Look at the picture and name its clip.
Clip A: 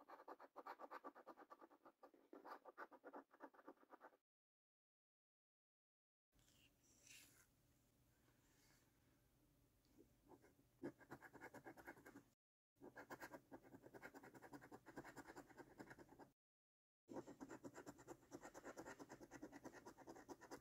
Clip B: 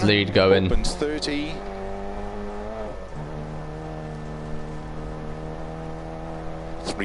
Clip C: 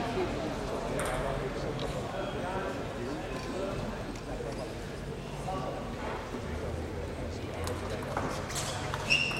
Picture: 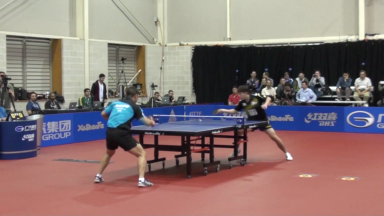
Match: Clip C